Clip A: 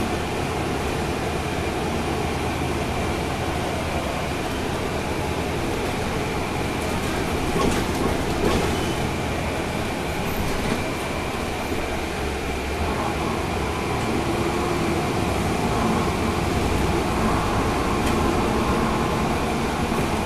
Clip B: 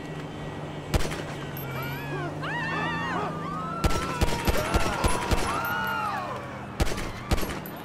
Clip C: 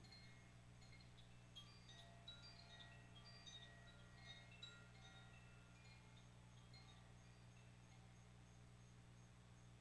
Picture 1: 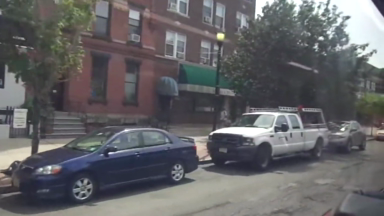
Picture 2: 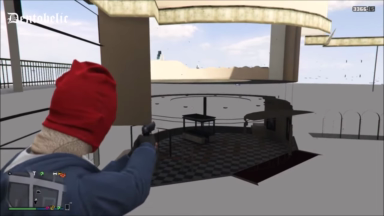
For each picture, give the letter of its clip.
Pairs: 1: A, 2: B